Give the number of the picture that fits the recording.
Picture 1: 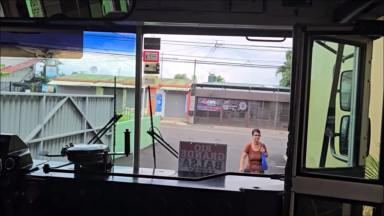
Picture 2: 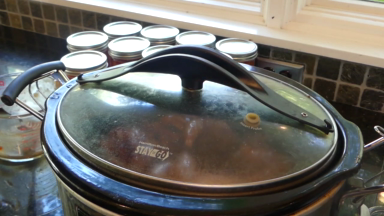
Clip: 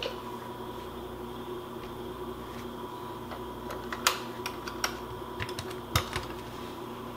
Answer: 2